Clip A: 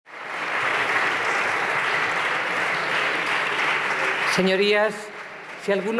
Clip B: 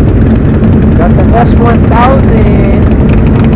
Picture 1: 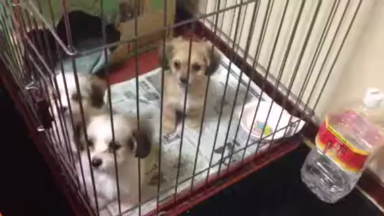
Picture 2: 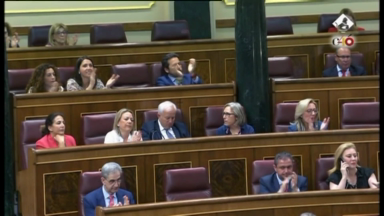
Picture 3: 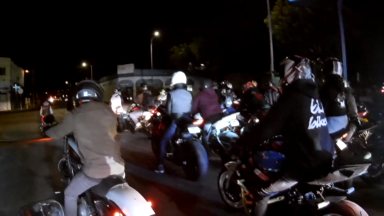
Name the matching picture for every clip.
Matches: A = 2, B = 3